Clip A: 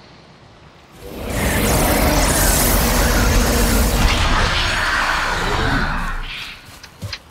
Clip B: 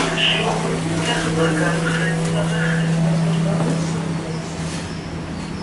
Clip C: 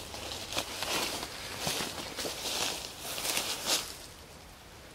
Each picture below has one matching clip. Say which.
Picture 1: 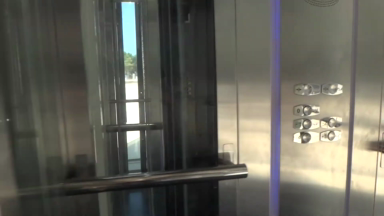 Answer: B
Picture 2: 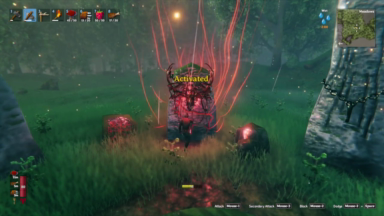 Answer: A